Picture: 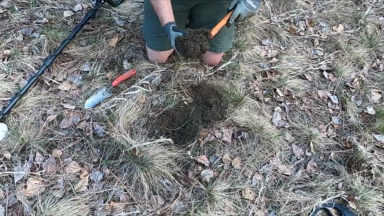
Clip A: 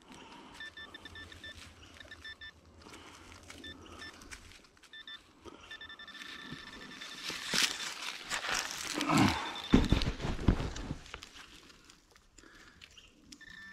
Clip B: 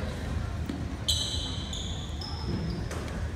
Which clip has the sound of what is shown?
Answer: A